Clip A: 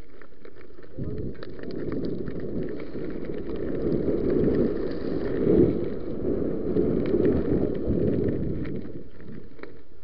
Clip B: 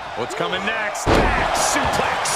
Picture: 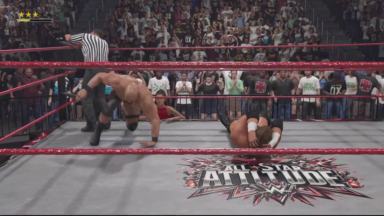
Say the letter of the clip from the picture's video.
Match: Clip B